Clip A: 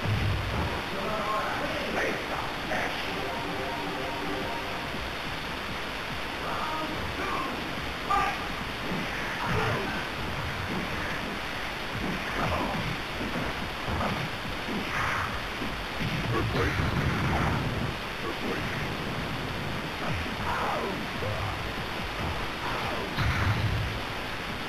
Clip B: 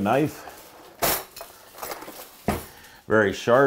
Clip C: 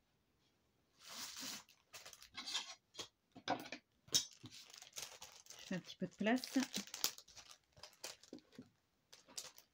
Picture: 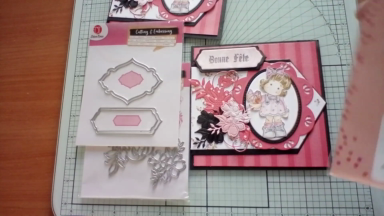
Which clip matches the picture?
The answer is C